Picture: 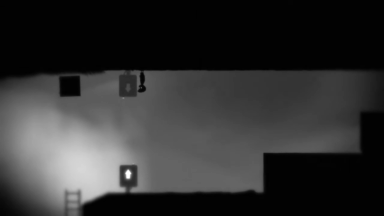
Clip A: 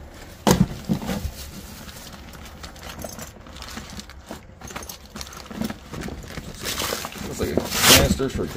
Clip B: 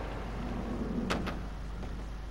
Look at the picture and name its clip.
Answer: B